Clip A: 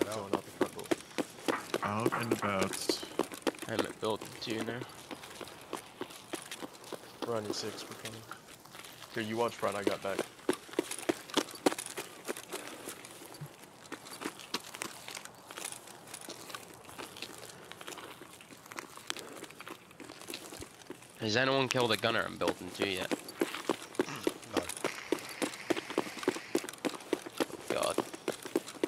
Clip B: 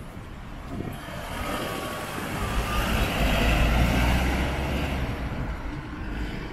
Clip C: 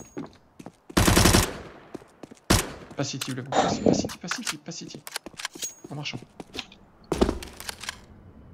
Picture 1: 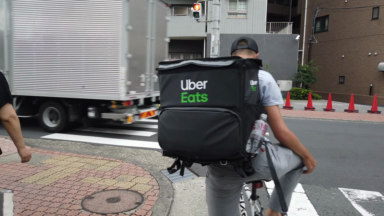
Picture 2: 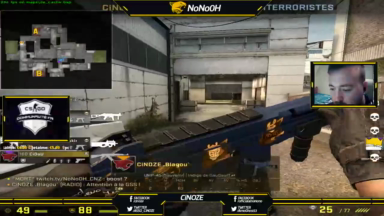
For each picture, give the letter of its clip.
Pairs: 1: B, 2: C